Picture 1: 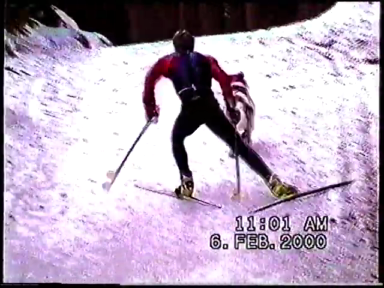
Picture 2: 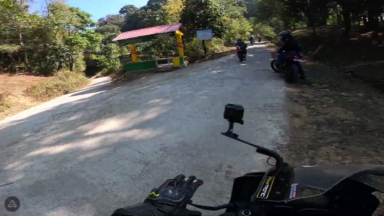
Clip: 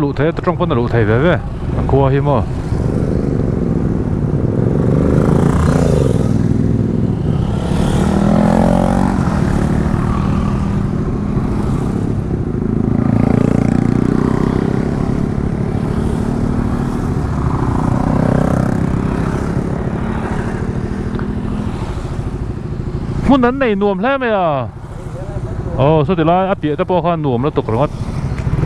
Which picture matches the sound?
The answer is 2